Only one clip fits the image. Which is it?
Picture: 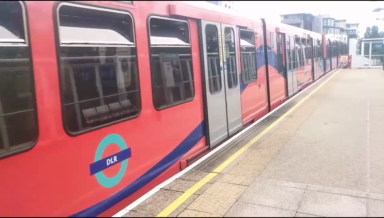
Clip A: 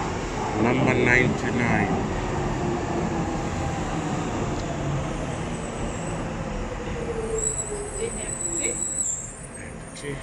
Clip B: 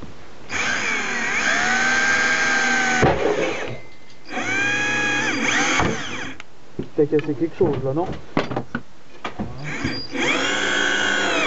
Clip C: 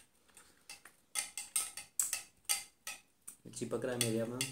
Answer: A